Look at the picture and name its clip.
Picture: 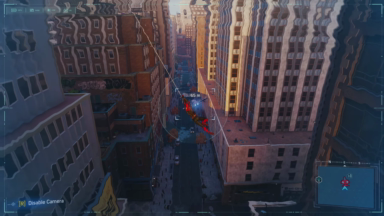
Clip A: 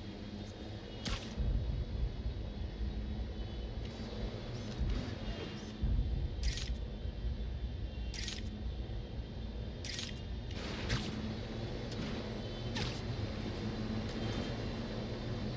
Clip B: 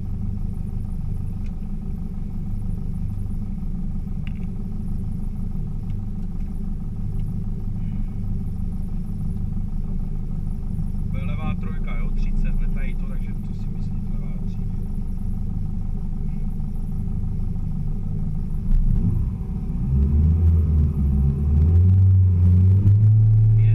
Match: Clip A